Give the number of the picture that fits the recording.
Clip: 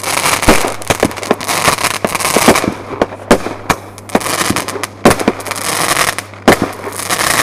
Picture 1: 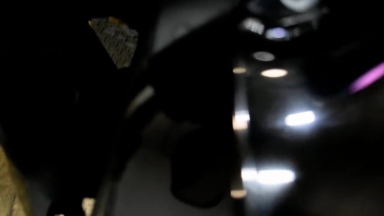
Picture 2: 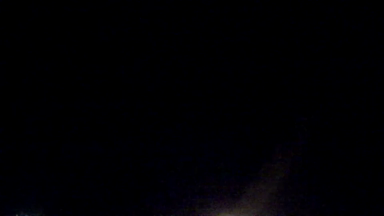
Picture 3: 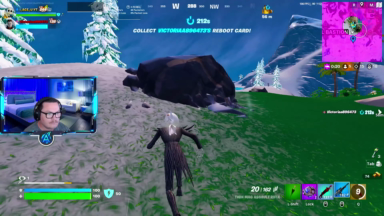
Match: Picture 2